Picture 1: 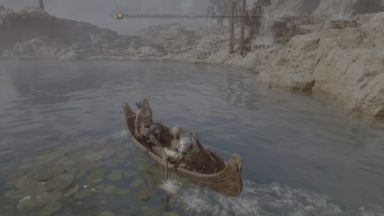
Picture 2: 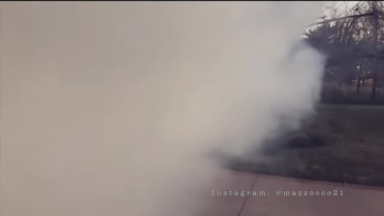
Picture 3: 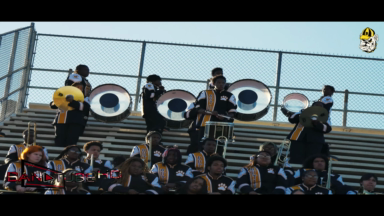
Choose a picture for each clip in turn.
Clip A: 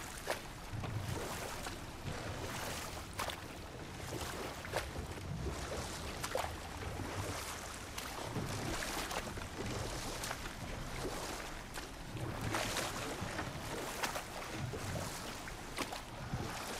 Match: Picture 1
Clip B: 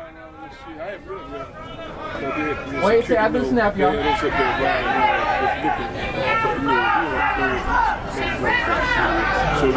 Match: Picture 3